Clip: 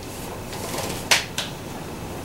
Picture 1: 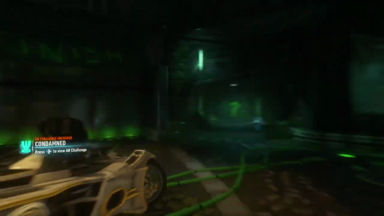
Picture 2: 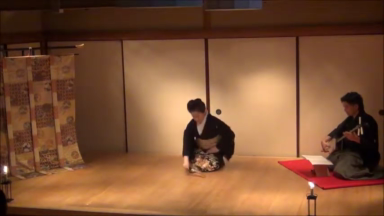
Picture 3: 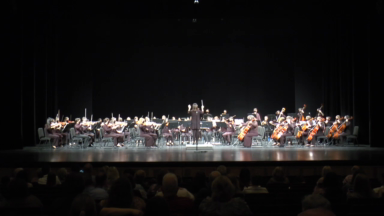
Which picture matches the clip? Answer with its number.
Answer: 2